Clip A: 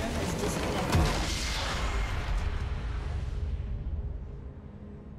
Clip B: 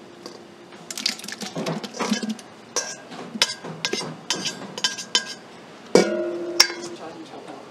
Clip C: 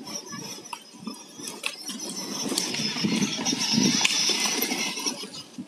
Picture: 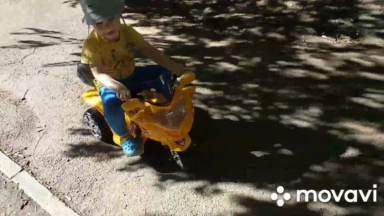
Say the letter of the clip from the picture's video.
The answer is C